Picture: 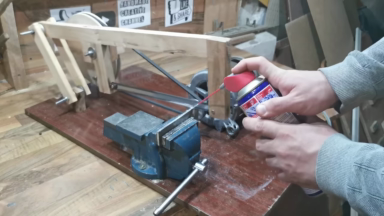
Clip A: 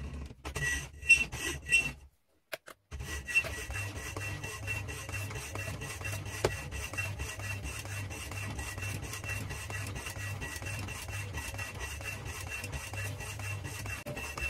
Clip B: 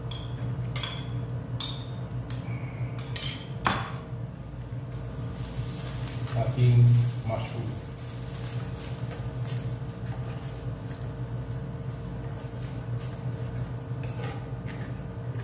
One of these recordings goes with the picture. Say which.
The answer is A